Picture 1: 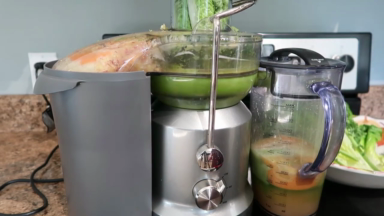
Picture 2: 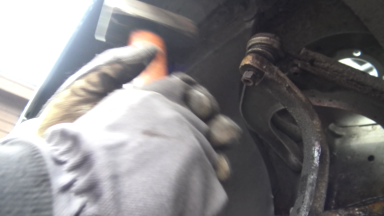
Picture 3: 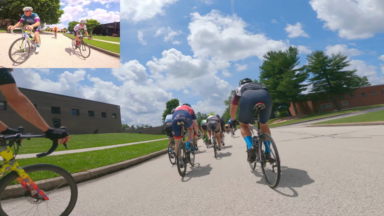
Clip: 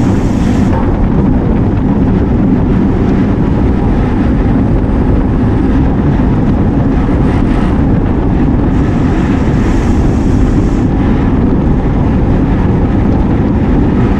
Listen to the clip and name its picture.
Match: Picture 3